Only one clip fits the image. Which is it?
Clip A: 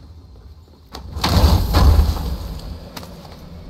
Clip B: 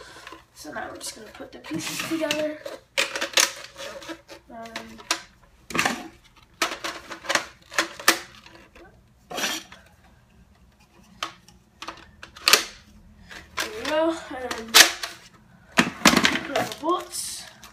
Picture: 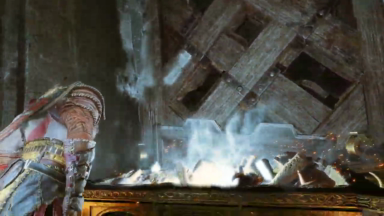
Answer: A